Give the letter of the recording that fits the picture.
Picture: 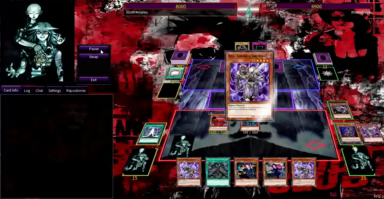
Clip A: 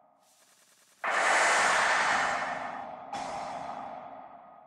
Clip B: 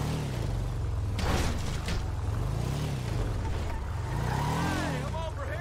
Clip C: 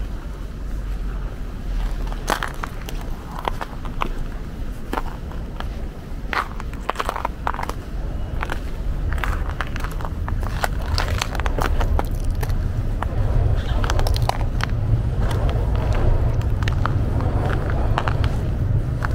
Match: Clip A